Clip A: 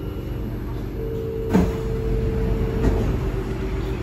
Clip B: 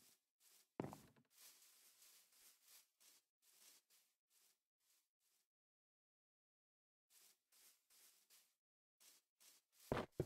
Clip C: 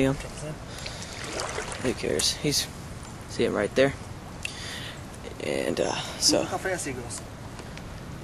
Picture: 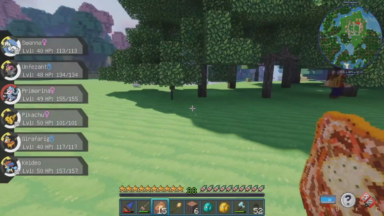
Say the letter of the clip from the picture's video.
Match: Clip B